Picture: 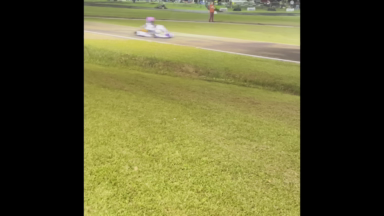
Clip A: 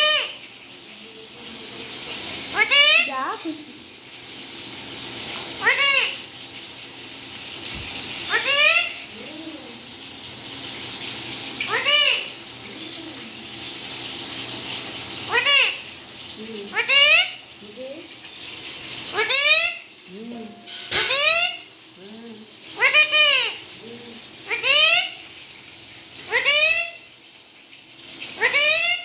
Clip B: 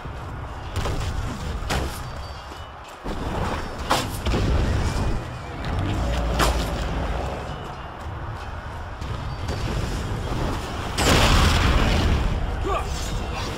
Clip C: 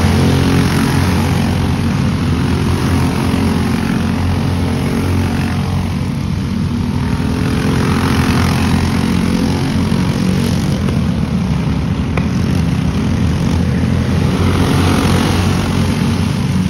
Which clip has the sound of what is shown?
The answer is C